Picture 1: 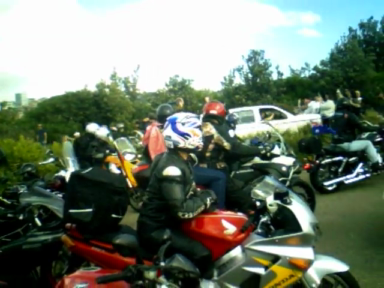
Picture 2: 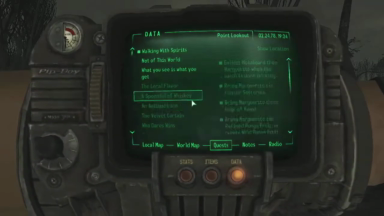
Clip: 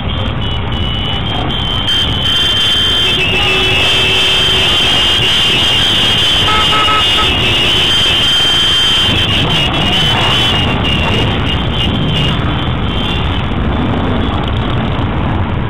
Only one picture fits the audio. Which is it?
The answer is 1